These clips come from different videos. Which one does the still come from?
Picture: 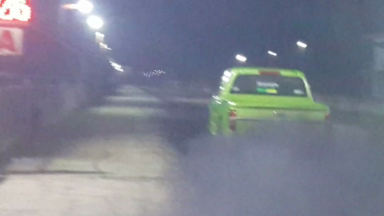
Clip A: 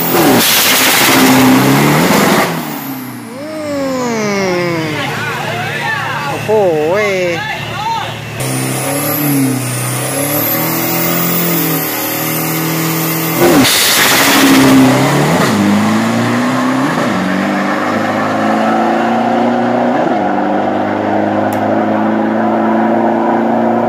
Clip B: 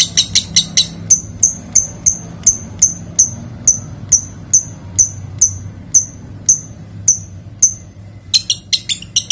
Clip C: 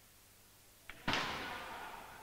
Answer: A